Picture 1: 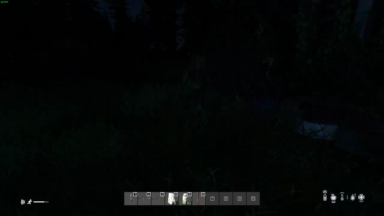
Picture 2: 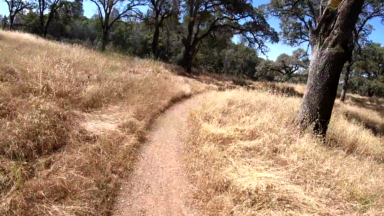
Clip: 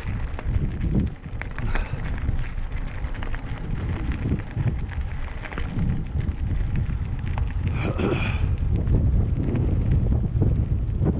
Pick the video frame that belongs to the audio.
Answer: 2